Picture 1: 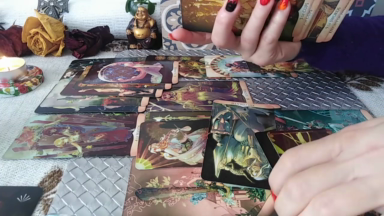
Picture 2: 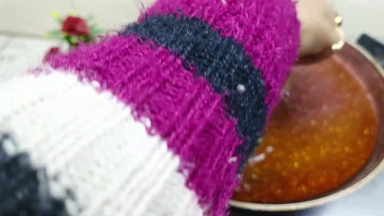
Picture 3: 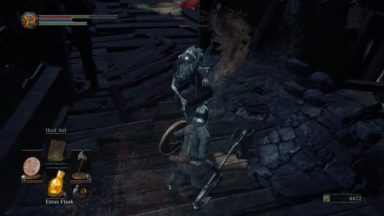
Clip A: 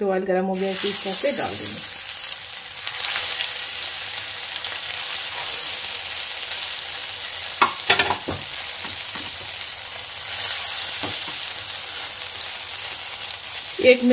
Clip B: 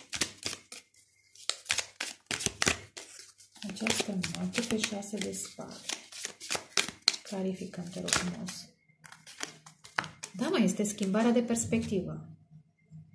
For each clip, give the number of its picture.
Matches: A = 2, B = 1